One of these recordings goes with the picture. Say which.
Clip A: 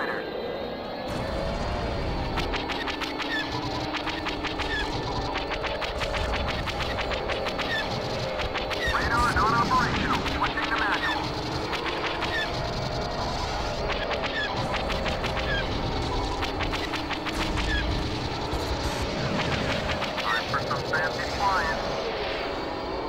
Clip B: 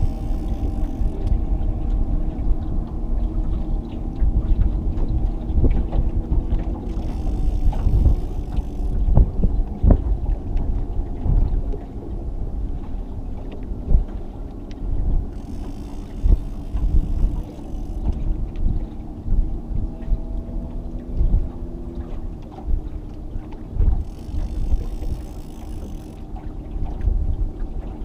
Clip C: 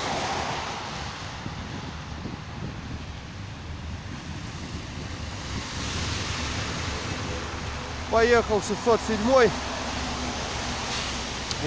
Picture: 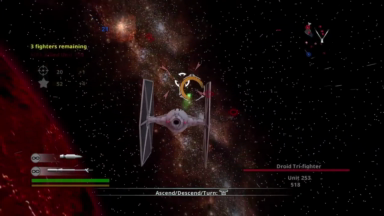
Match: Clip A